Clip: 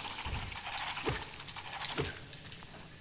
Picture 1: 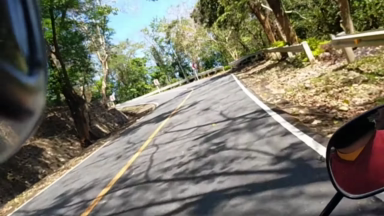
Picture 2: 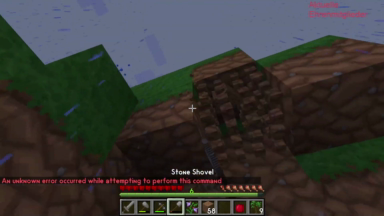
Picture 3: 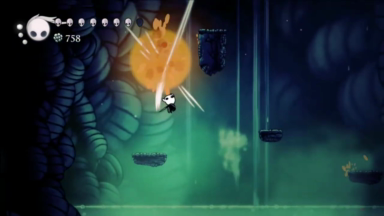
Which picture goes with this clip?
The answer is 3